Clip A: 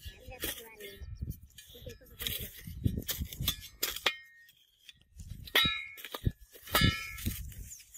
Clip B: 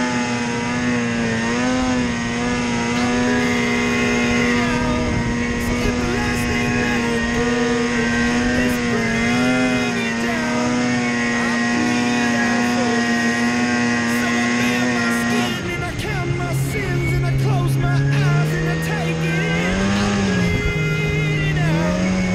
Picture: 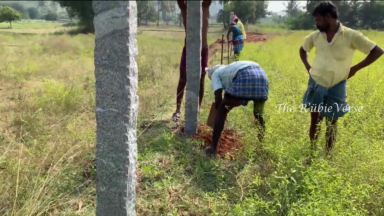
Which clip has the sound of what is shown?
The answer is A